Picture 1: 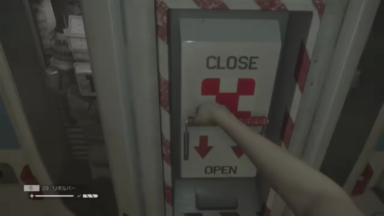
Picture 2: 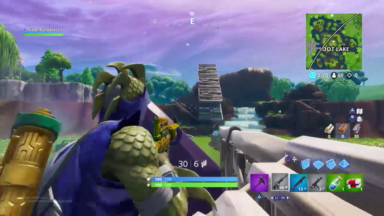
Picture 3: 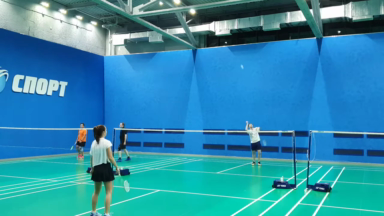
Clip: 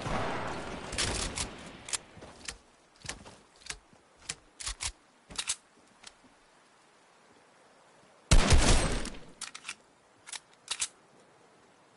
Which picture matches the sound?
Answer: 2